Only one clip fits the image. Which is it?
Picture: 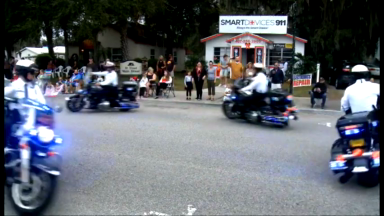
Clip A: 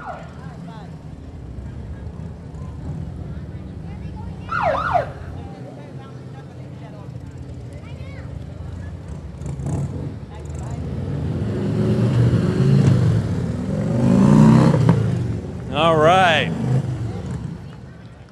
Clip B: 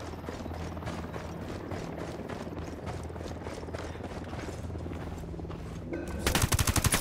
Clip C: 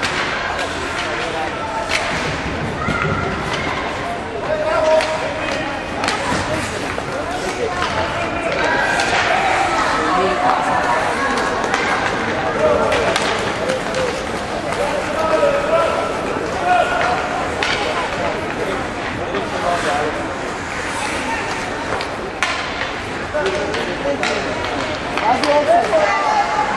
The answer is A